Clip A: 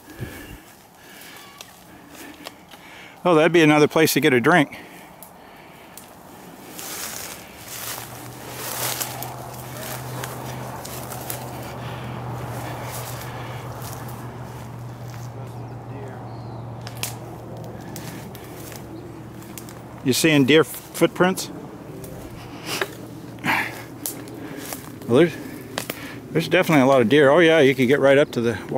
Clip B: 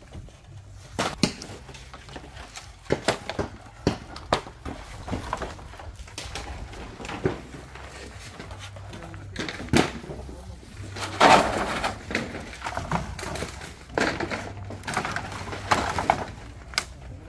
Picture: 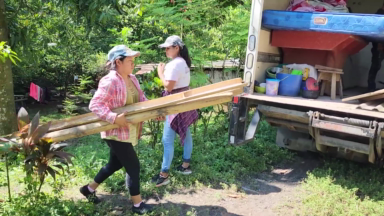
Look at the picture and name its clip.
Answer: B